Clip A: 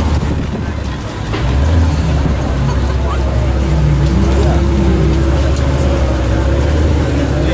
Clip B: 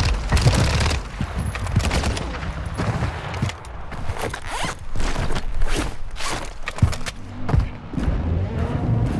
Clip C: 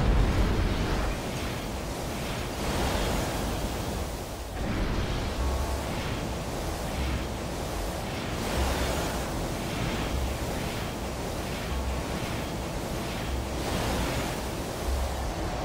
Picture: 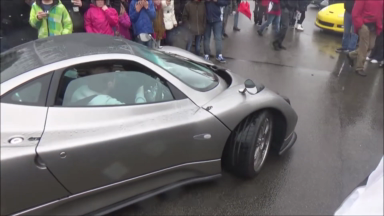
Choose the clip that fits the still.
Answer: A